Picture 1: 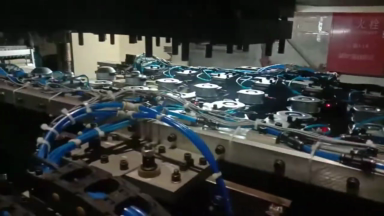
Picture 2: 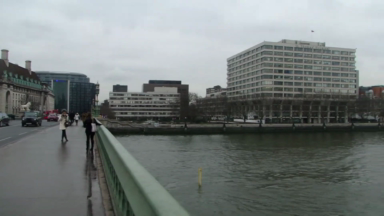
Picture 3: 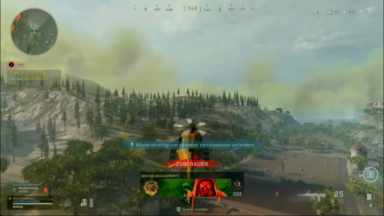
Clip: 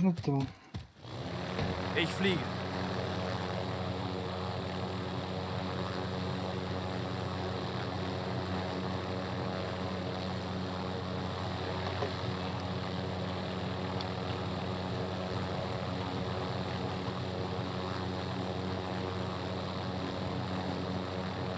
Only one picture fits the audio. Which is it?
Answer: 3